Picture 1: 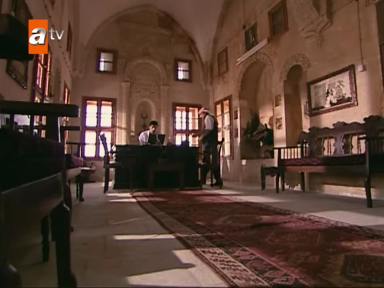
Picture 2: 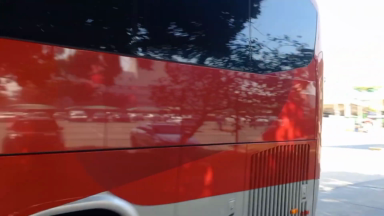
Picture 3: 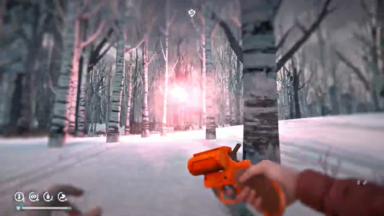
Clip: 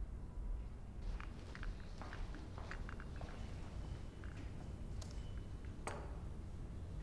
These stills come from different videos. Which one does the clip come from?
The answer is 1